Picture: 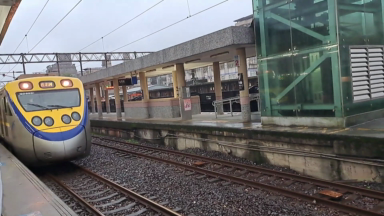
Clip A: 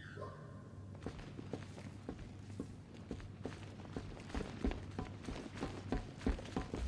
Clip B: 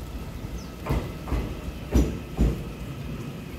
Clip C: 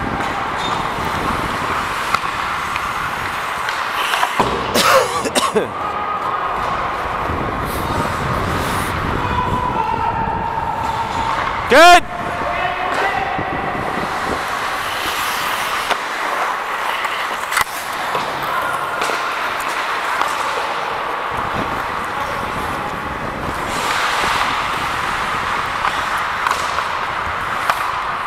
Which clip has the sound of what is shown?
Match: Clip B